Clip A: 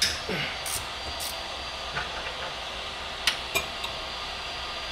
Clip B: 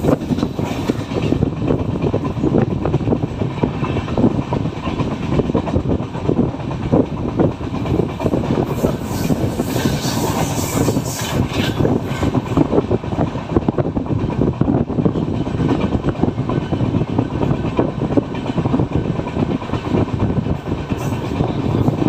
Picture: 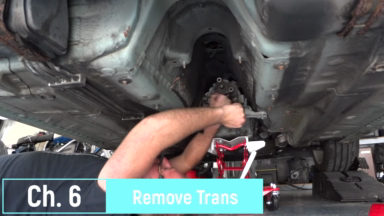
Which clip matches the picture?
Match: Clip A